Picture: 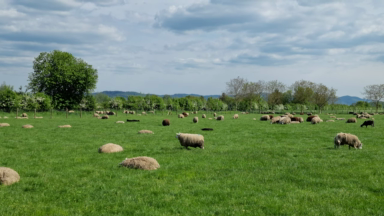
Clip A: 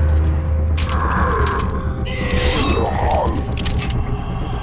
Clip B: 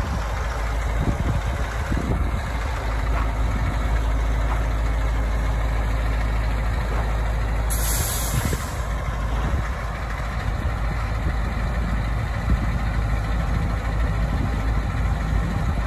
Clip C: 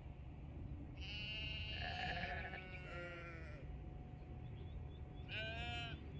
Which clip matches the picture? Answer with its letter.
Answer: C